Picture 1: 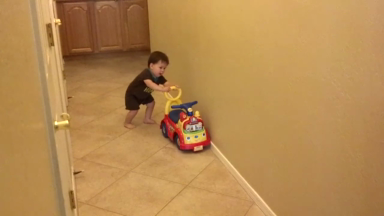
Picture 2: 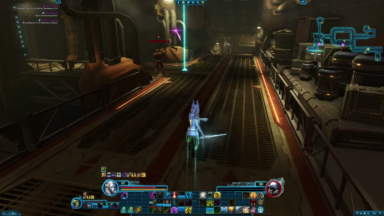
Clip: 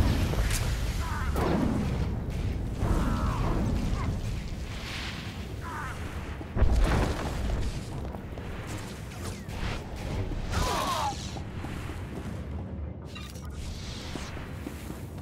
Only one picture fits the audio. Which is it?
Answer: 2